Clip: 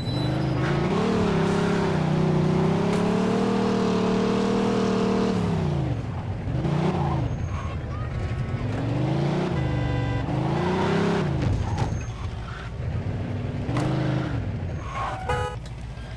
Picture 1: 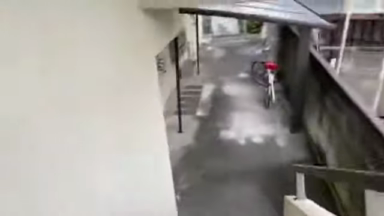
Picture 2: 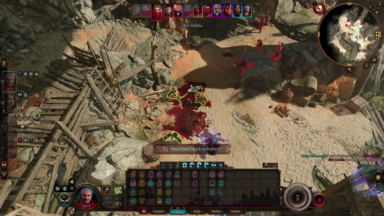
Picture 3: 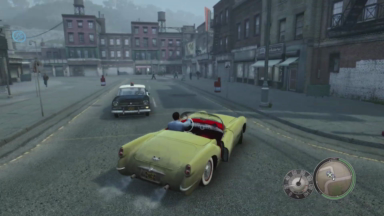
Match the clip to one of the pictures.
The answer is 3